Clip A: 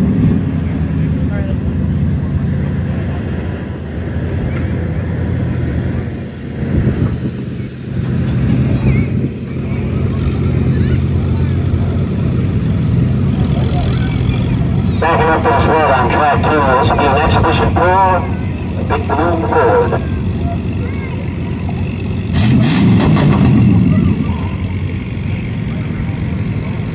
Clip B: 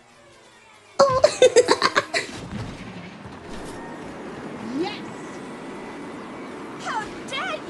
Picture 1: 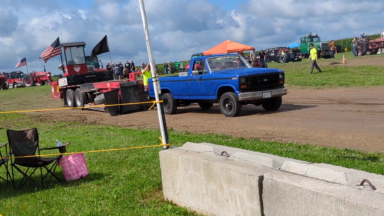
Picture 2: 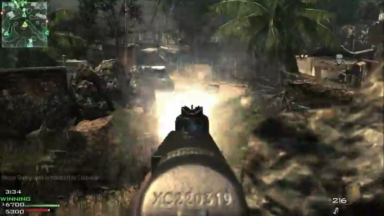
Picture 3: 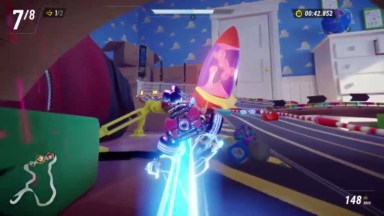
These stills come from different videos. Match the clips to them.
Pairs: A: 1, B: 3